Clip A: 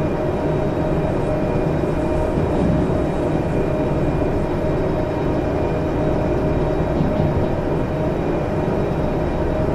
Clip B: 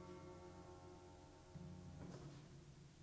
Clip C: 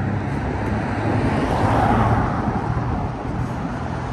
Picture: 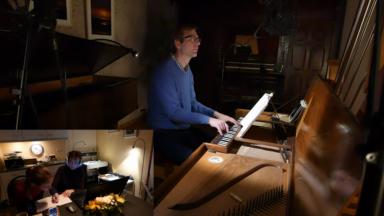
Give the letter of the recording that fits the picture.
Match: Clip B